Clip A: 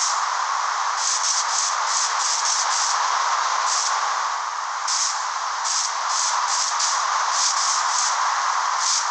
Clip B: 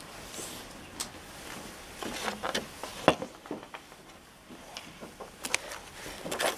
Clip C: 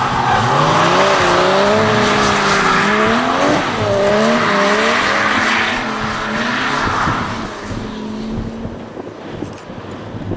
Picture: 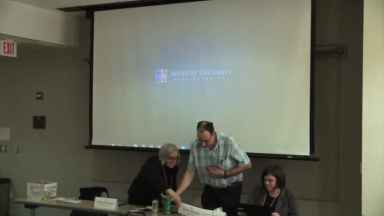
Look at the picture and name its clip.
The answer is B